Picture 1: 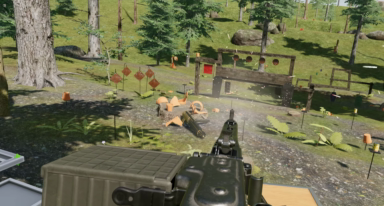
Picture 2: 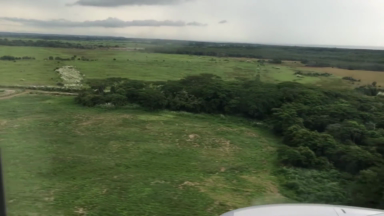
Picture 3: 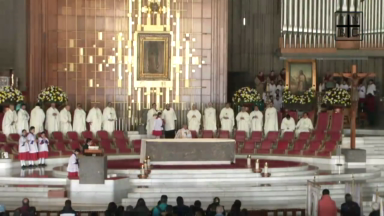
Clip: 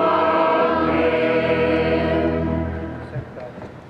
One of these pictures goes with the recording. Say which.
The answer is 3